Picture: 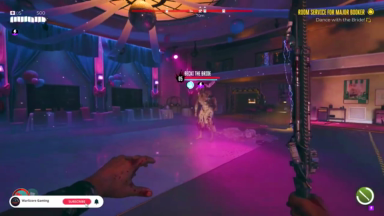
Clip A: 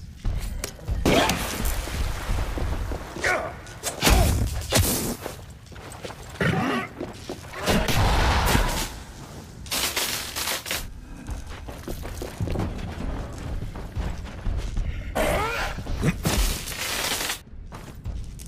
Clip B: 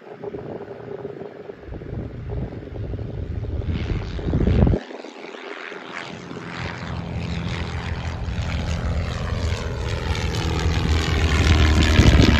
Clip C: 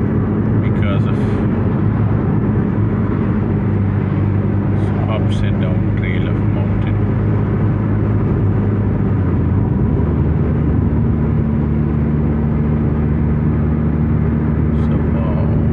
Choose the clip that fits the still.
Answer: A